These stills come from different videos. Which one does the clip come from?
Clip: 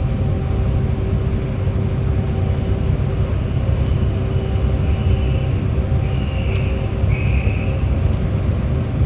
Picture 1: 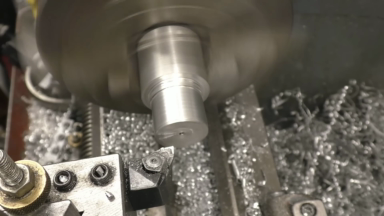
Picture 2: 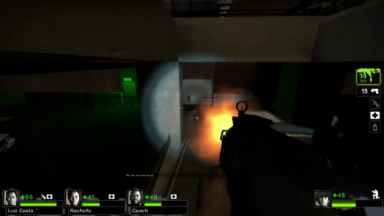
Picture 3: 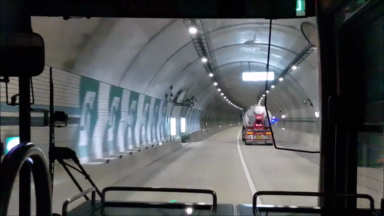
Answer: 3